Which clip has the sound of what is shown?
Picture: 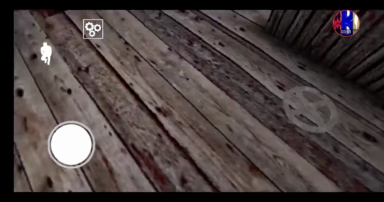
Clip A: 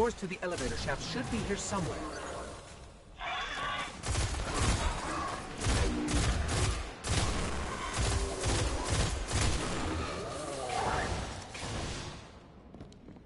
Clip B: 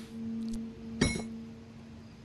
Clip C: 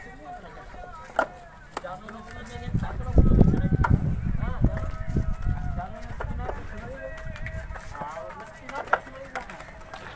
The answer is B